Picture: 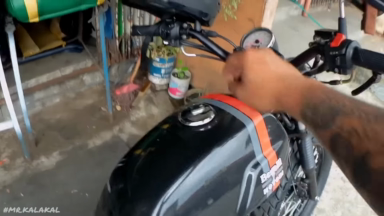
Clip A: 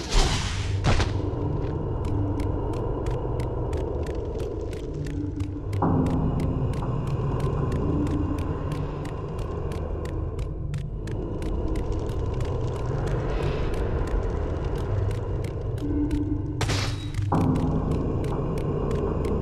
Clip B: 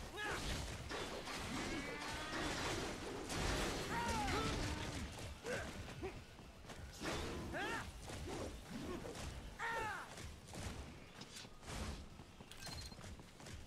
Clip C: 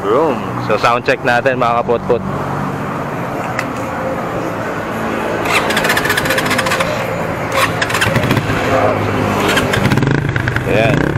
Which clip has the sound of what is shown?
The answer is C